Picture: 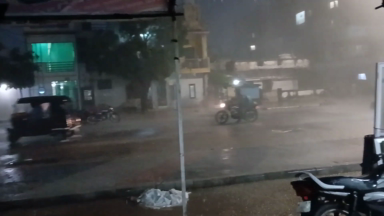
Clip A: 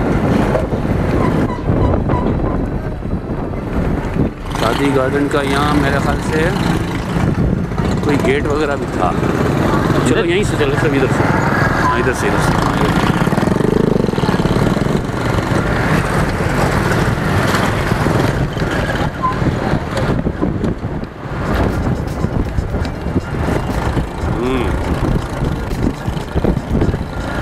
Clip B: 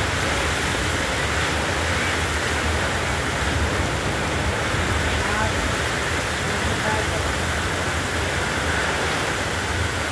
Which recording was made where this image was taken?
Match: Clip B